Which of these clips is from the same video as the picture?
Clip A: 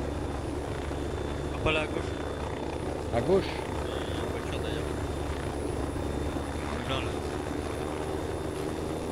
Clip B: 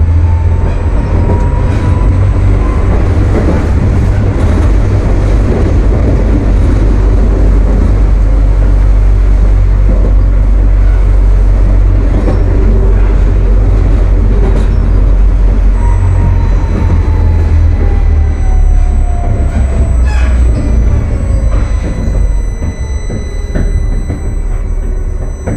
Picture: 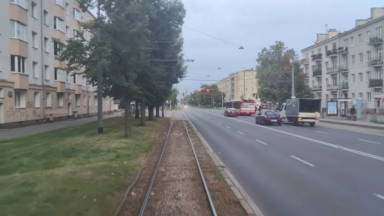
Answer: B